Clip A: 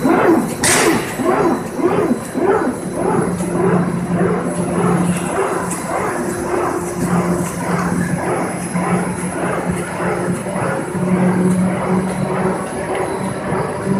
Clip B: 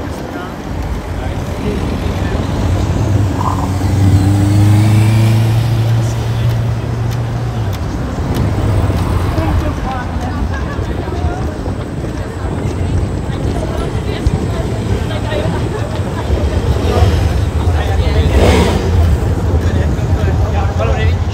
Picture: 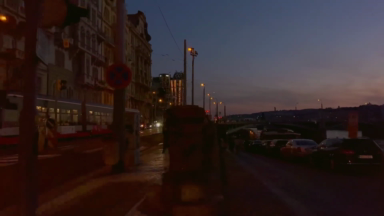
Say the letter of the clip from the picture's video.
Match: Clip B